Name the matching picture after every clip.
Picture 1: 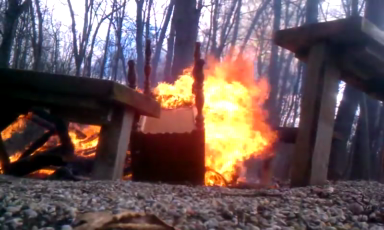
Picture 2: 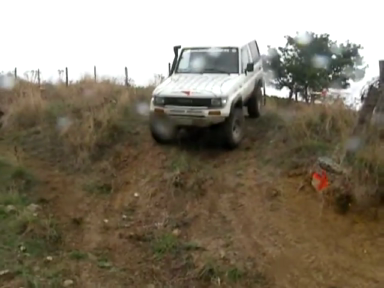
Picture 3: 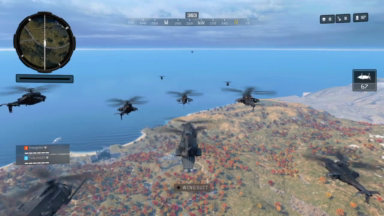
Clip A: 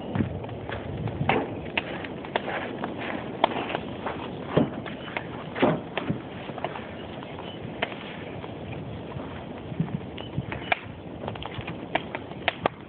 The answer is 1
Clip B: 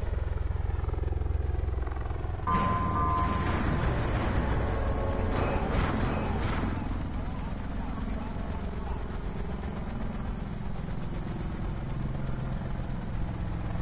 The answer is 3